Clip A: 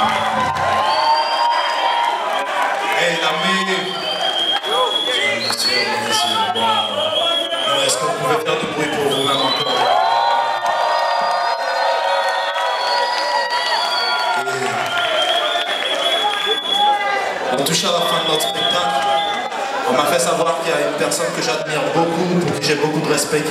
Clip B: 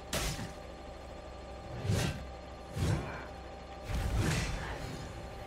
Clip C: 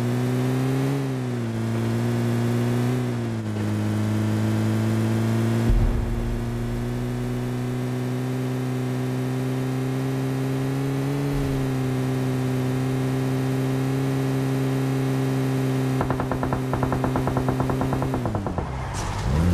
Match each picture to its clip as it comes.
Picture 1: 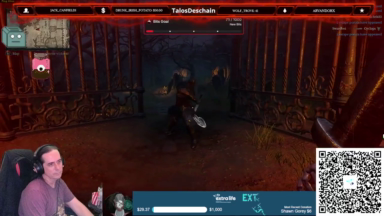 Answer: B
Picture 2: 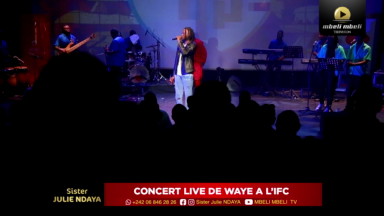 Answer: A